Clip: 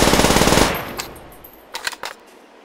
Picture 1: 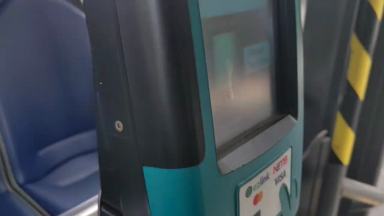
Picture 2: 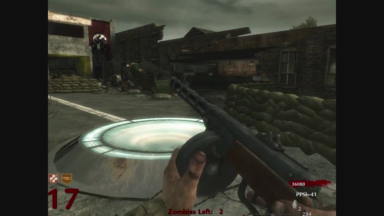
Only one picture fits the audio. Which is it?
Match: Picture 2